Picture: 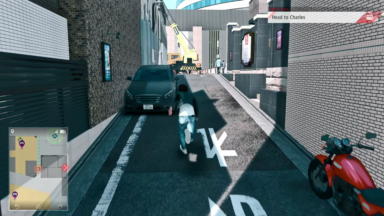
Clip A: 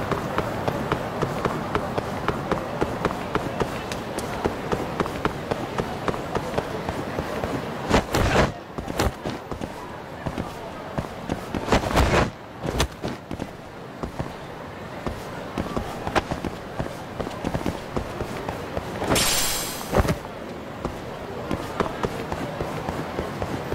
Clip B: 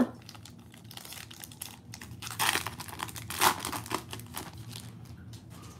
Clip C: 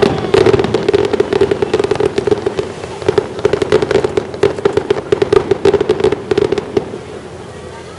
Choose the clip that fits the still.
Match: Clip A